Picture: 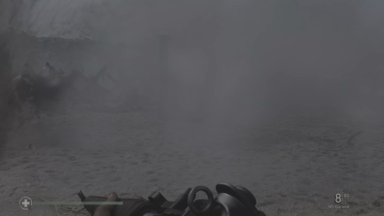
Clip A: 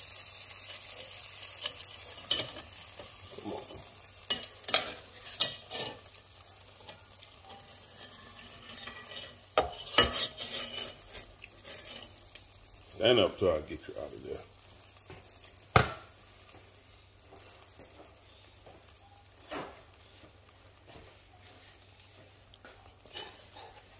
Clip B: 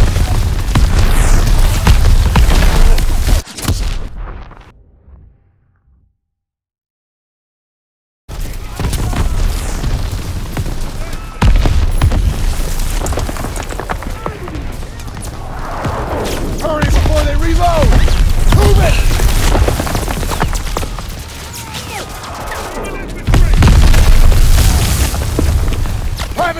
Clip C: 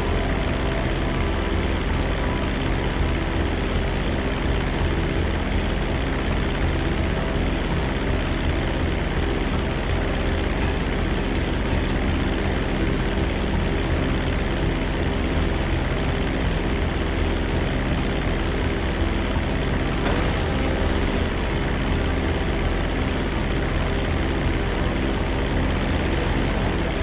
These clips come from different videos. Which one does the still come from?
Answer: B